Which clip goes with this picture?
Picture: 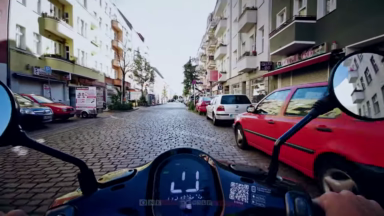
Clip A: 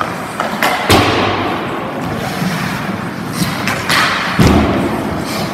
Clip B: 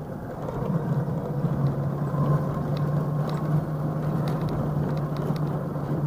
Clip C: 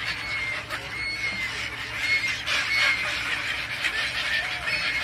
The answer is B